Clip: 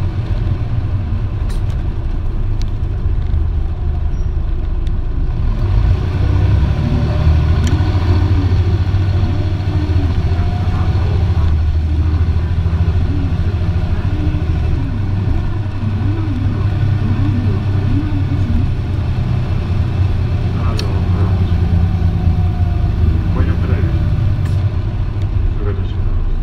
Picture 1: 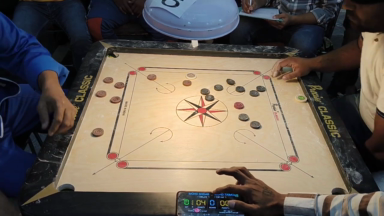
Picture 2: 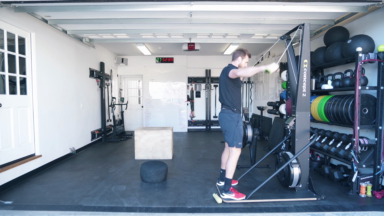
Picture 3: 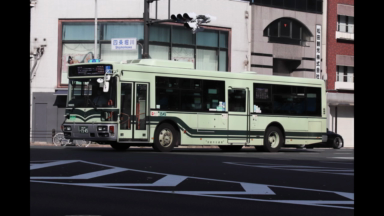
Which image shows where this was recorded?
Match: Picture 3